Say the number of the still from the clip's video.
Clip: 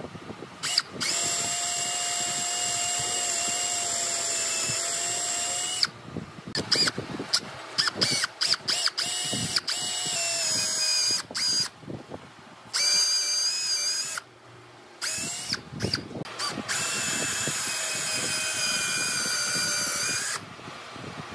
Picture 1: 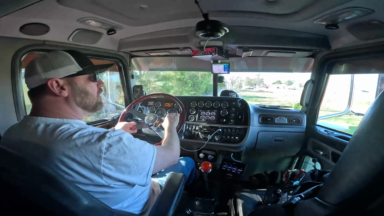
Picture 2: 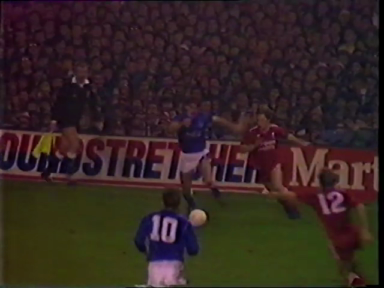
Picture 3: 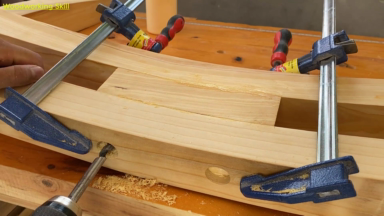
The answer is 3